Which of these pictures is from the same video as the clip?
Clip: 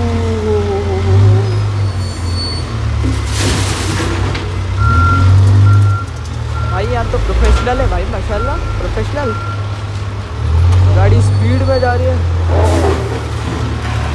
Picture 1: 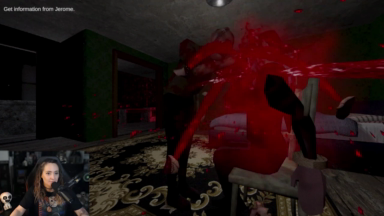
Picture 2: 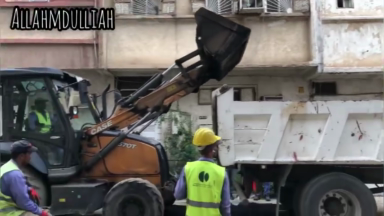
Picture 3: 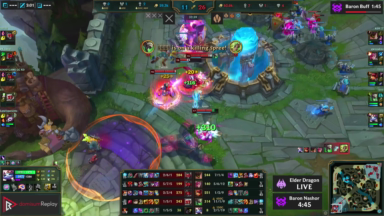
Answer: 2